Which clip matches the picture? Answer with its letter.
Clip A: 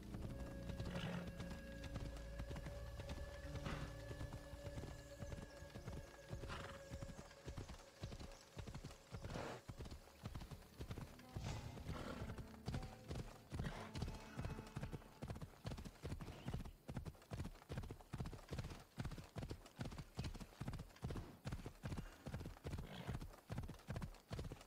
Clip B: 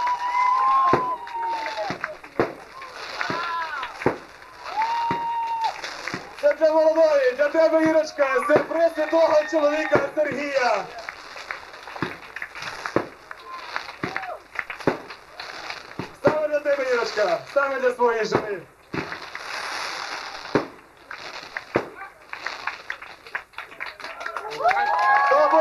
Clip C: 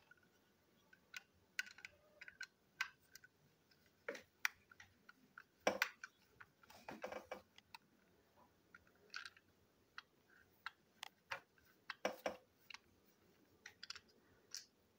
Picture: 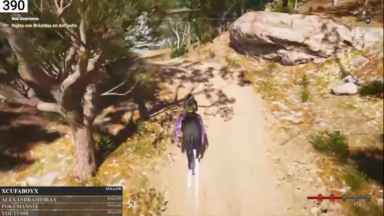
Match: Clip A